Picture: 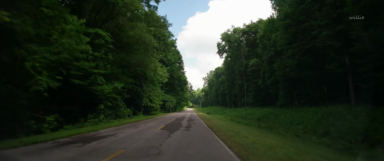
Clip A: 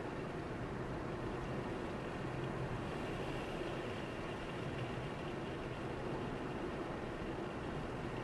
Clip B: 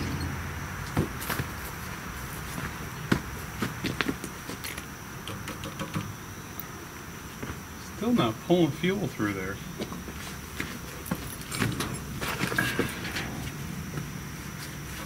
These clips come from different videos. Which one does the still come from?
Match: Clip A